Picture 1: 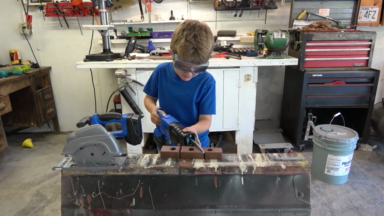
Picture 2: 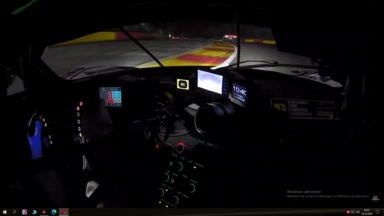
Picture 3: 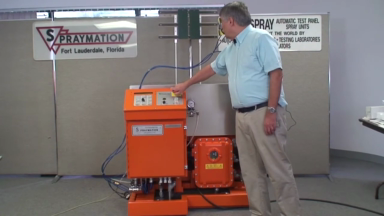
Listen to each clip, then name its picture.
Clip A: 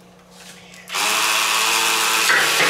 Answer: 1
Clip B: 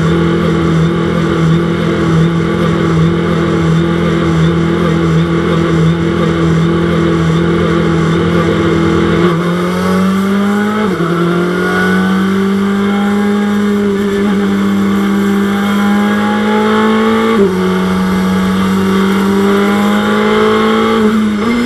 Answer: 2